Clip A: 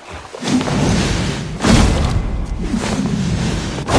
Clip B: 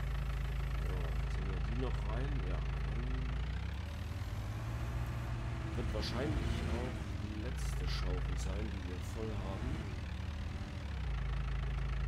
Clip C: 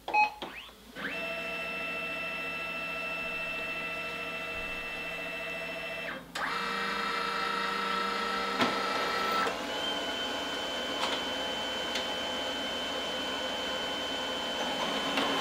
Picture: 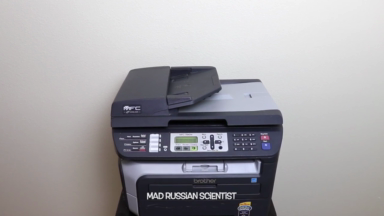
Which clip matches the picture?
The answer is C